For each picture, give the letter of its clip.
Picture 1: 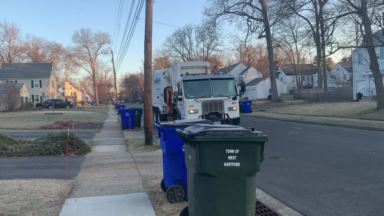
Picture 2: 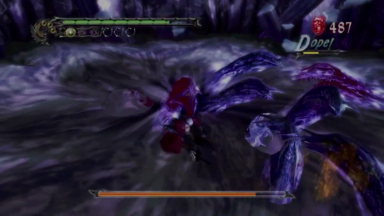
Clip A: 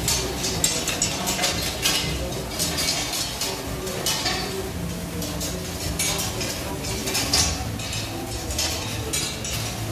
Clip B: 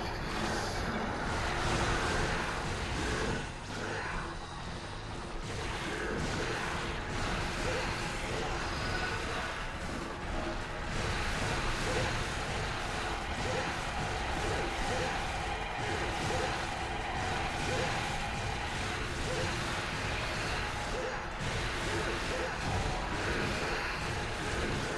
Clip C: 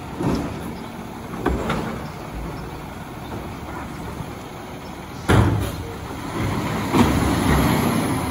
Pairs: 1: C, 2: B